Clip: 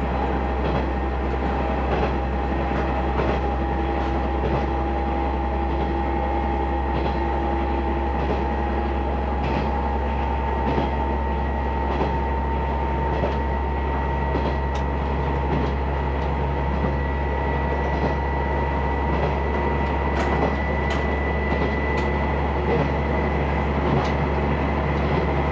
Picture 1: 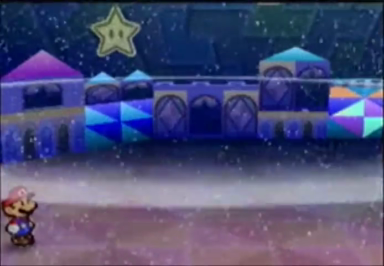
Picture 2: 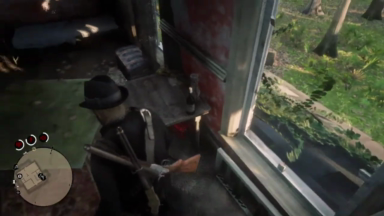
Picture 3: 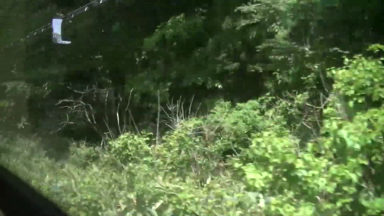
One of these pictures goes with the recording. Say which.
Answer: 3